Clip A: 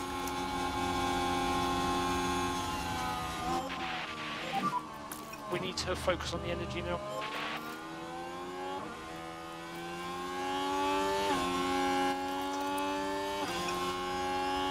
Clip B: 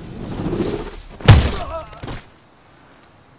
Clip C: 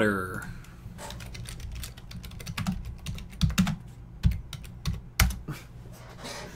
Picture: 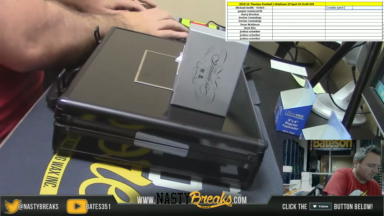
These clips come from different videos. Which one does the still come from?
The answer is C